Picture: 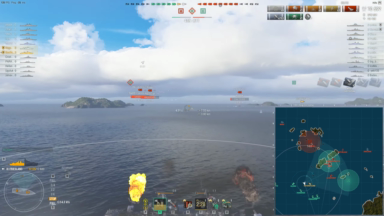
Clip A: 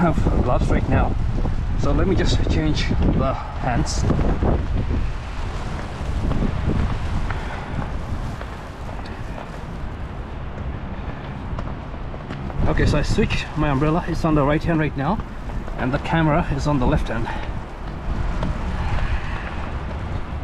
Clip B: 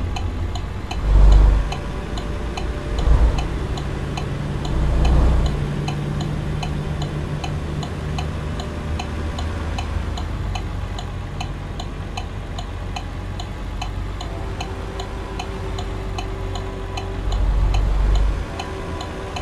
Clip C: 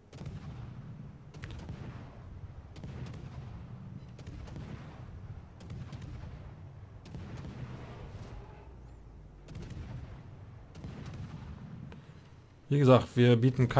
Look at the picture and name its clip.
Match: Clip C